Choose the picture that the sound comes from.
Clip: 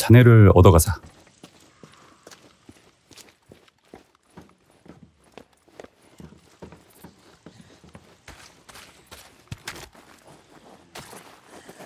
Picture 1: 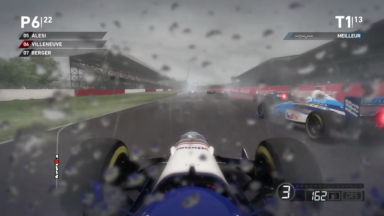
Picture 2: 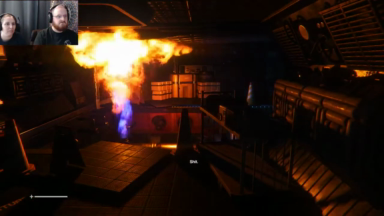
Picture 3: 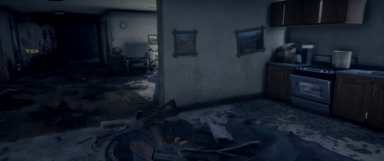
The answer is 3